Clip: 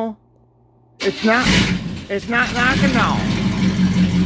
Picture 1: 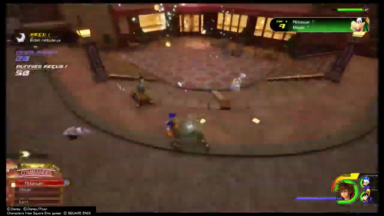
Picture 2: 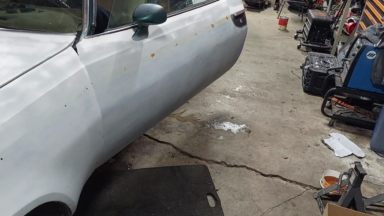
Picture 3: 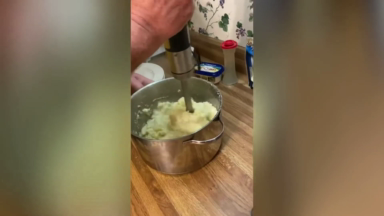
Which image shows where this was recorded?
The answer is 2